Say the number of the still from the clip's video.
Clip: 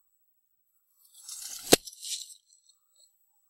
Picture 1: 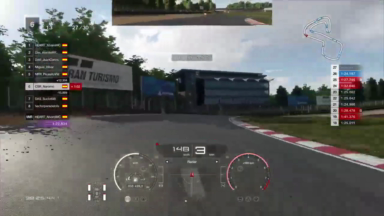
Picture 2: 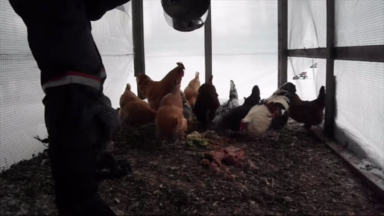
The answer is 2